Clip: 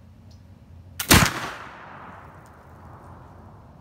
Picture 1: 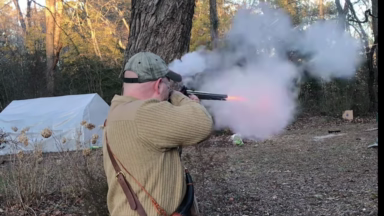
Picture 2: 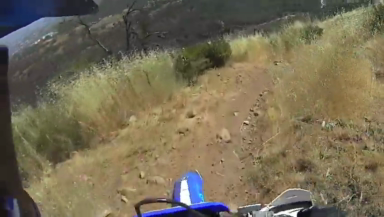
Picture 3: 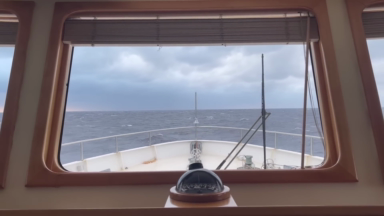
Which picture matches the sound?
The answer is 1